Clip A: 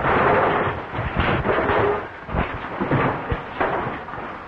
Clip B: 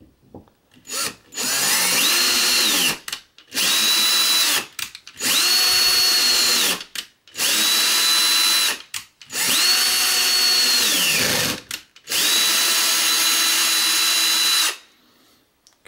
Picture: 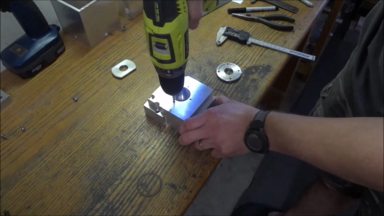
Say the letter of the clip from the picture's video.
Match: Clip B